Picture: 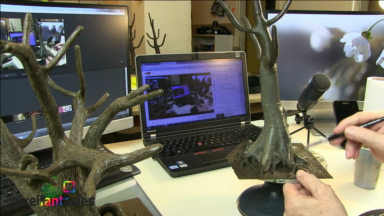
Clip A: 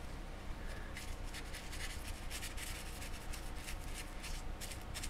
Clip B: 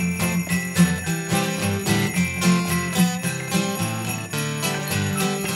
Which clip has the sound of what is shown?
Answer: A